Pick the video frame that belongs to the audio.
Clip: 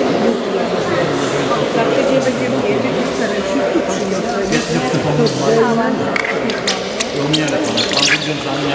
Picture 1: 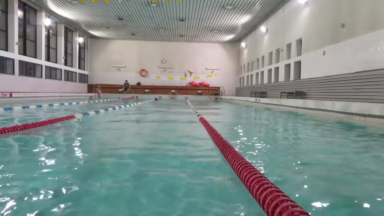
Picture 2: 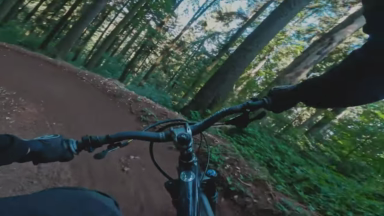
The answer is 1